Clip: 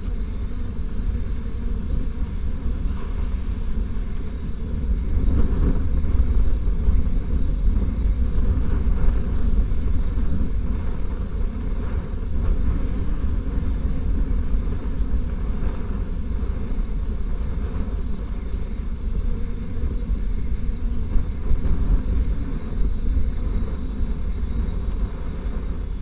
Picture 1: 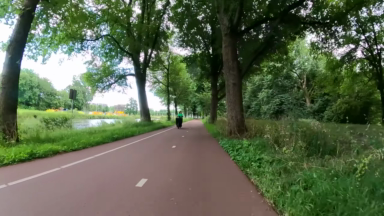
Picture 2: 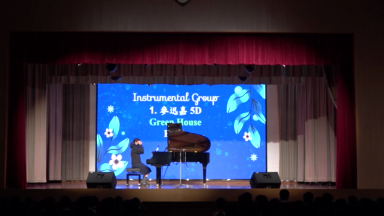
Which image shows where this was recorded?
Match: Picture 1